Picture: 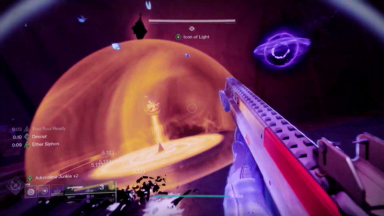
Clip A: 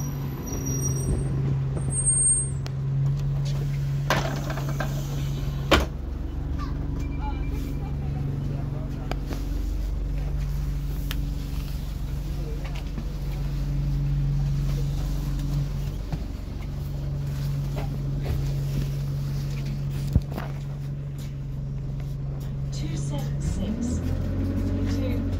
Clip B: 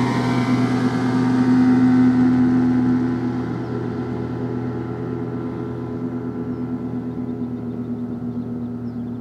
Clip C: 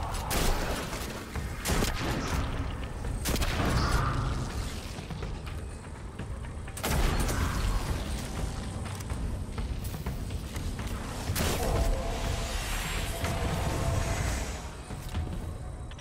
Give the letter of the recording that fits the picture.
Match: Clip C